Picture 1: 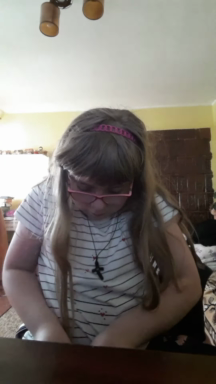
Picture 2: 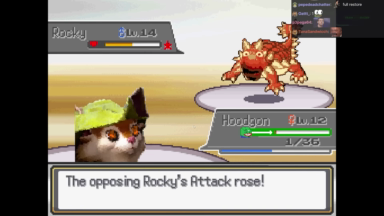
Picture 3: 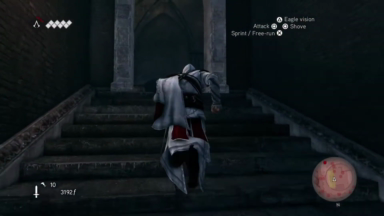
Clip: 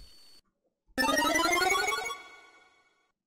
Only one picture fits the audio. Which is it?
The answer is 2